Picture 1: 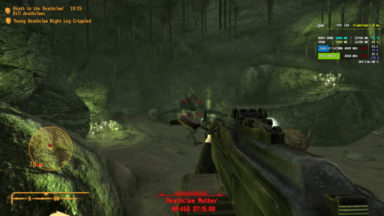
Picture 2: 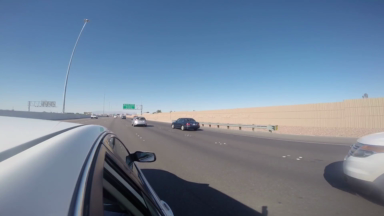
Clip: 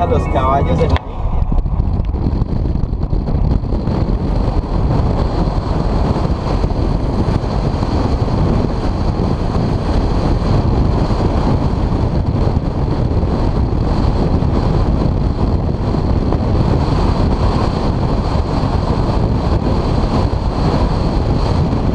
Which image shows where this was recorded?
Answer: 2